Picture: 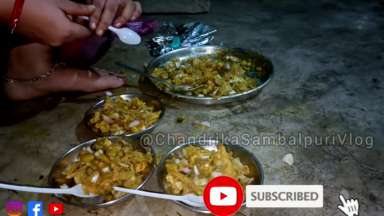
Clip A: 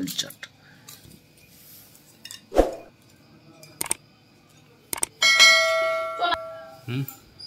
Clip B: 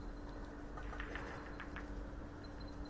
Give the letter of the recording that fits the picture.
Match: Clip A